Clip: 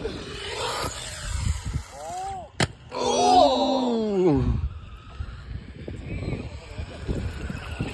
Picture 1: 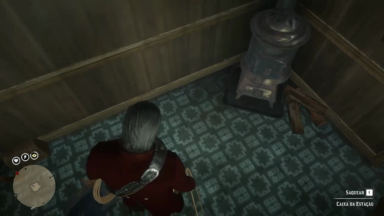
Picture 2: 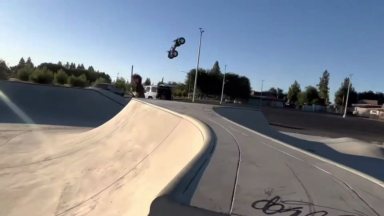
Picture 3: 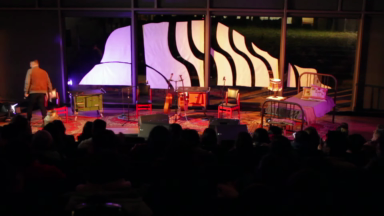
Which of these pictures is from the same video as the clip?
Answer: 2